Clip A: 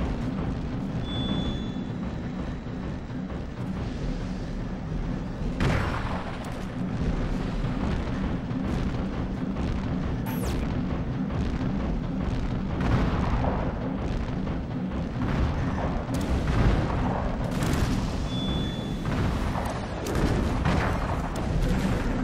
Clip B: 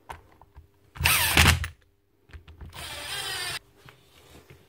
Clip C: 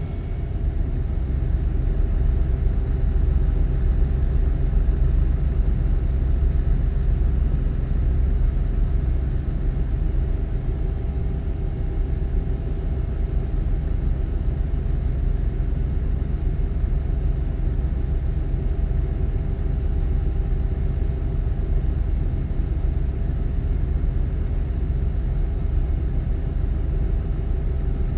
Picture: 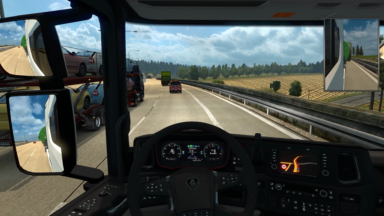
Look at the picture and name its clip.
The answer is C